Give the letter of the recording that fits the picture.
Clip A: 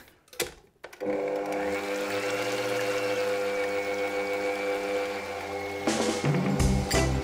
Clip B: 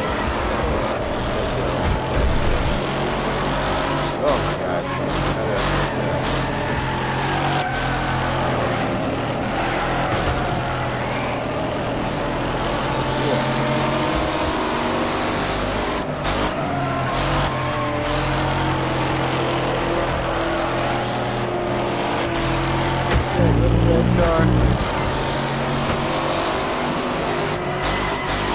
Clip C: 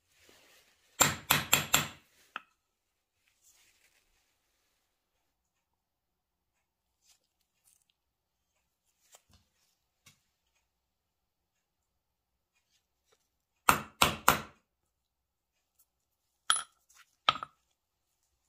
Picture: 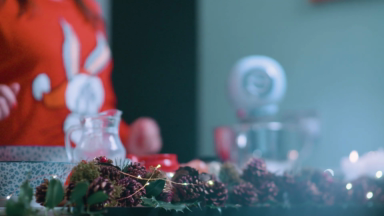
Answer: A